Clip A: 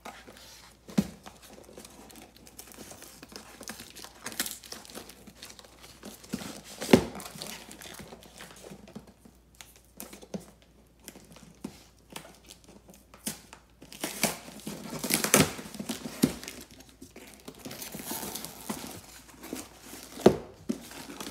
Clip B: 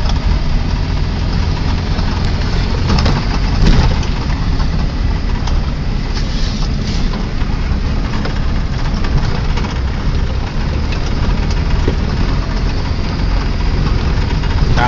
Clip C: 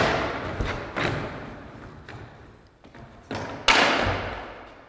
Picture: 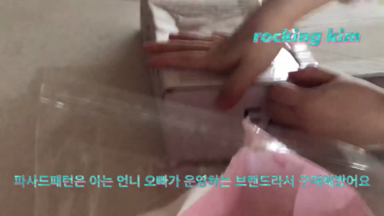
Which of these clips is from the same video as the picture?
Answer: A